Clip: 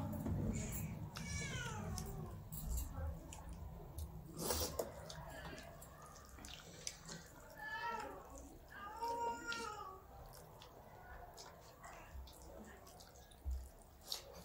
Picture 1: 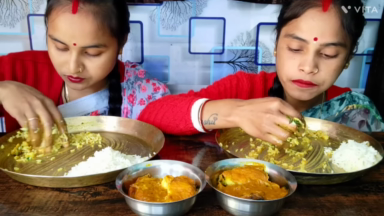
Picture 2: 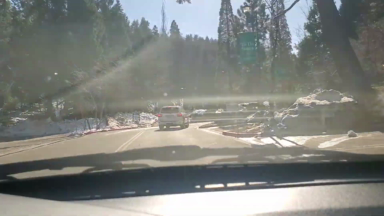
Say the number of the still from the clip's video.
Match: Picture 1